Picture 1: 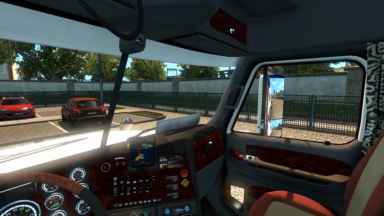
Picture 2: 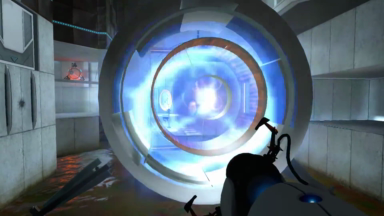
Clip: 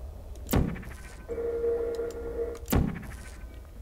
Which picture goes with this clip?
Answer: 2